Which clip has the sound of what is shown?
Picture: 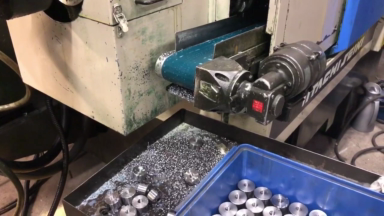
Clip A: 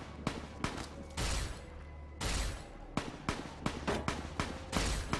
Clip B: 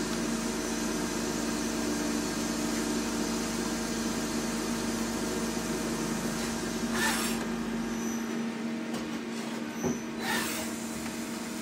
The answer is B